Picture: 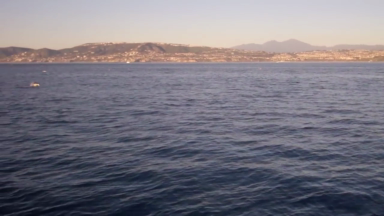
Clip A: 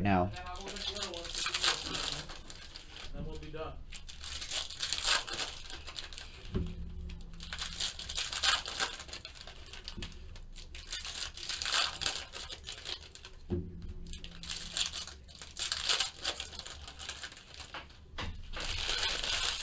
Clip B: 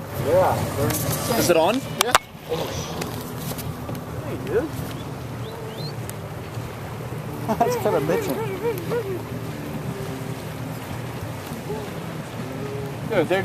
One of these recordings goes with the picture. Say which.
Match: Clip B